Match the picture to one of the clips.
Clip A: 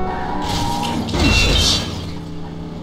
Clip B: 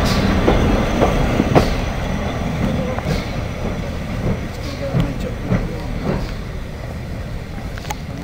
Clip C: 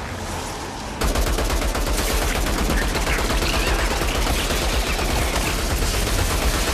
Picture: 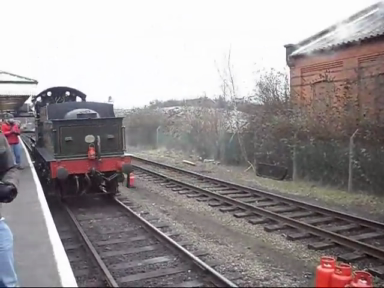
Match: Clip B